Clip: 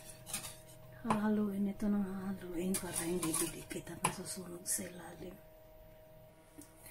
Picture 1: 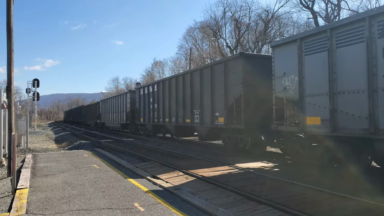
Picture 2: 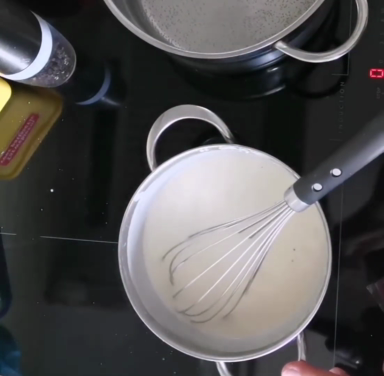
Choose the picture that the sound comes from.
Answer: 2